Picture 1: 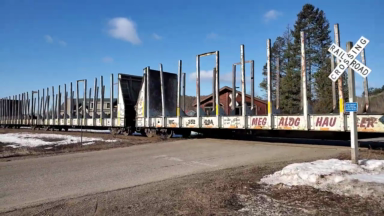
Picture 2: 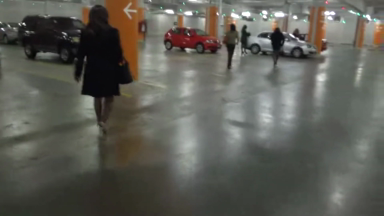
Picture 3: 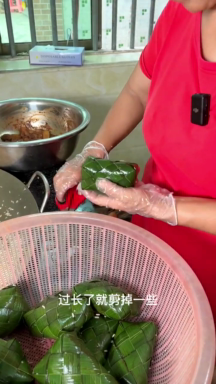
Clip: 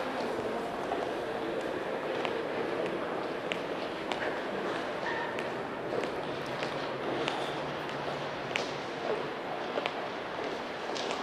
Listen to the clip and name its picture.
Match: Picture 2